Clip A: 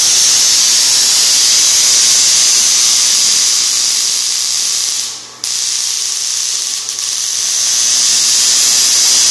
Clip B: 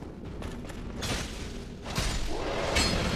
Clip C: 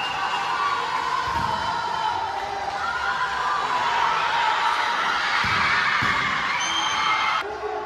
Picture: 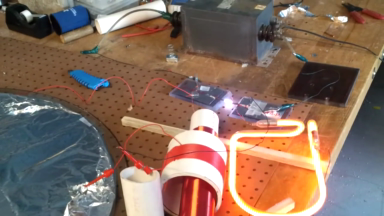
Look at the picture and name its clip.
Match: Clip A